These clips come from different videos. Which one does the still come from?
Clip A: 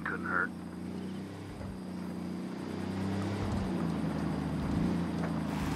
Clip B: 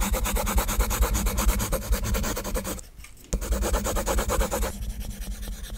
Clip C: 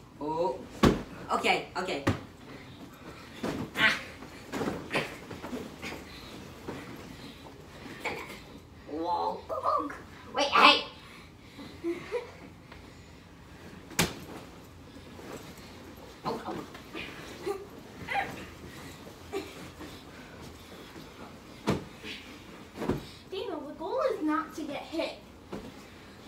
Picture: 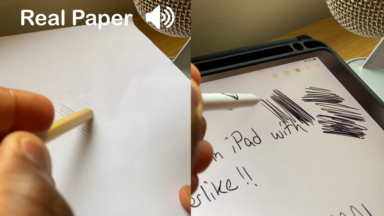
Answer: B